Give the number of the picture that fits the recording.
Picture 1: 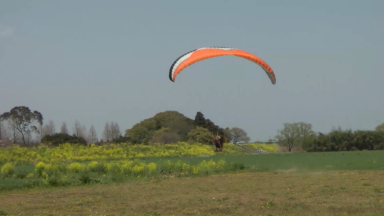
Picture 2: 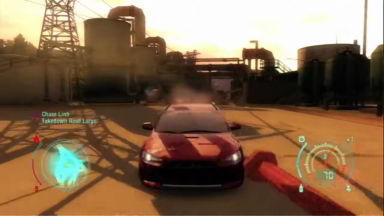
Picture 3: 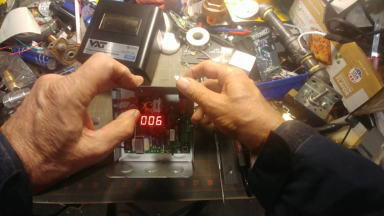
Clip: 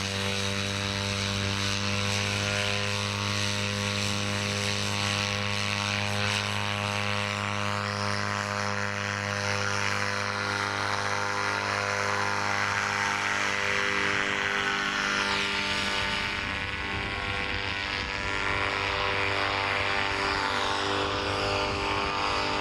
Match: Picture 1